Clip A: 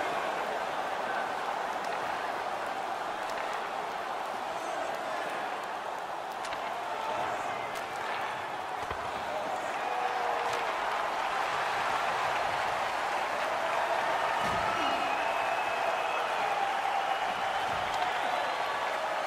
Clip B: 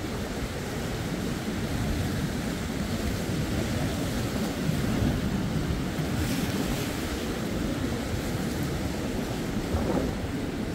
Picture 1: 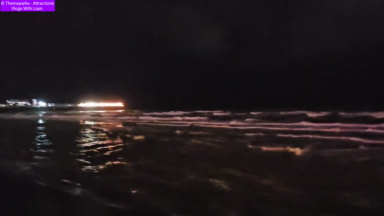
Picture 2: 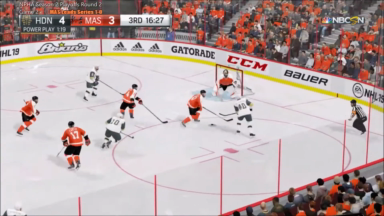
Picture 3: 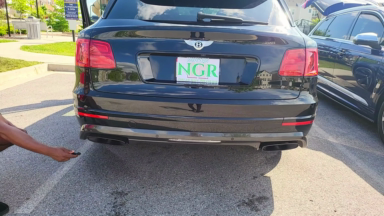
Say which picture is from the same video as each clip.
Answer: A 2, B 1